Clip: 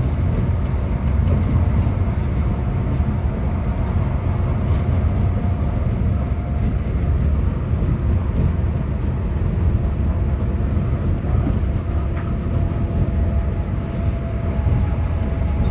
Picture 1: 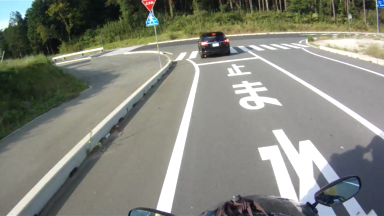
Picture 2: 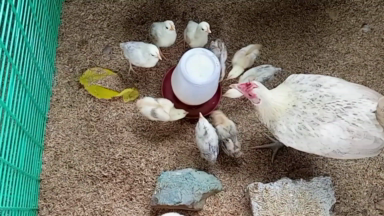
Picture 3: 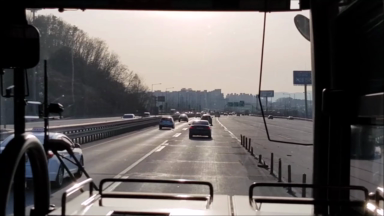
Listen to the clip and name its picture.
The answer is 3